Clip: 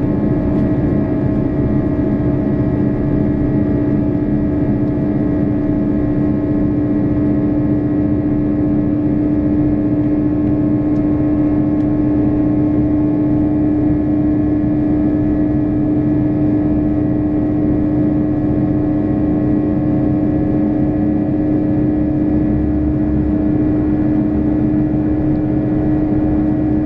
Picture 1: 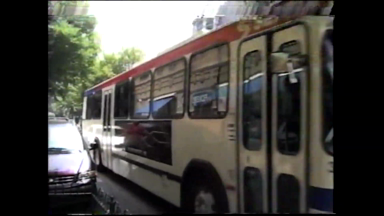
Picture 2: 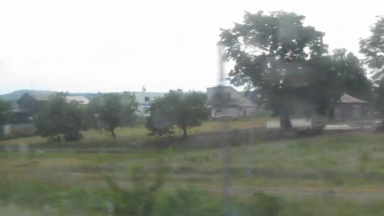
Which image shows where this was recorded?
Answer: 2